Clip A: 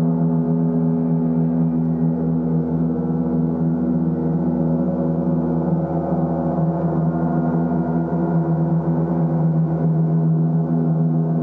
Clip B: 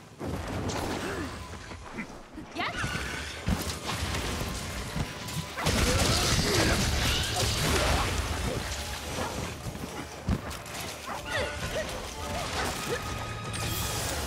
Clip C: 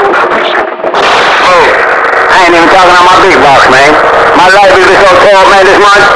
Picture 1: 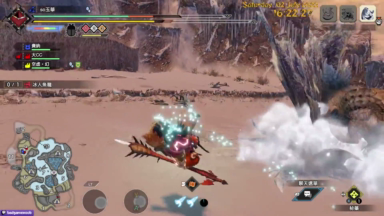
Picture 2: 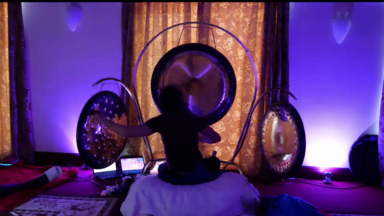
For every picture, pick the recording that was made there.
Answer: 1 B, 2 A